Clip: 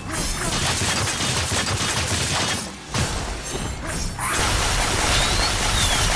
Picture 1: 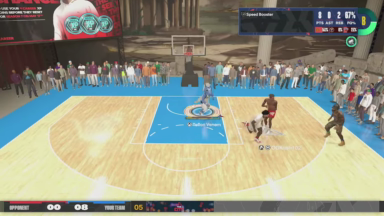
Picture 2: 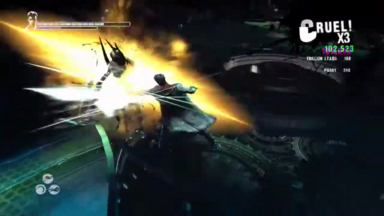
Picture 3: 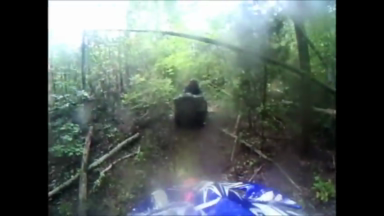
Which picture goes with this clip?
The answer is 2